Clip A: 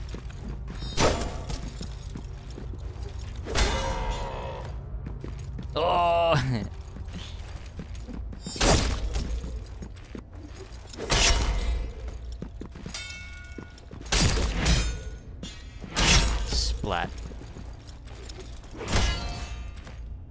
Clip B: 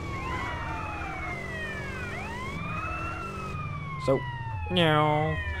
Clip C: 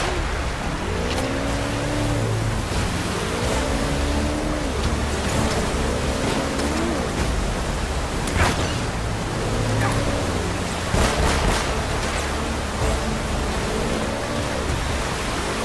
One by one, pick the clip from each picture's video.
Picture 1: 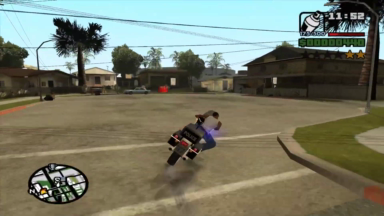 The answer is B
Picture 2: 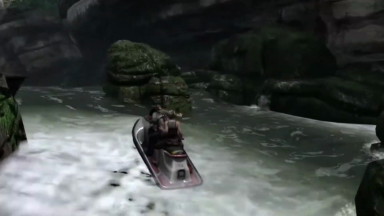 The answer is C